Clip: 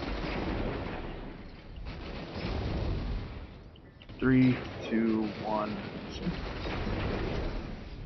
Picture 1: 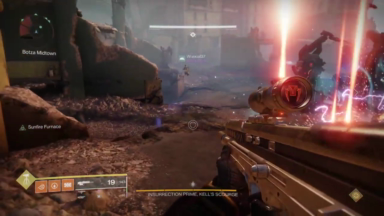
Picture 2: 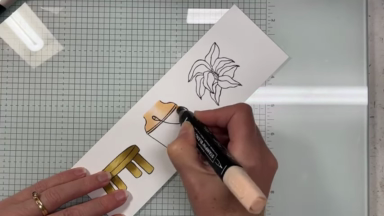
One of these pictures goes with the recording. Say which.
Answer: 1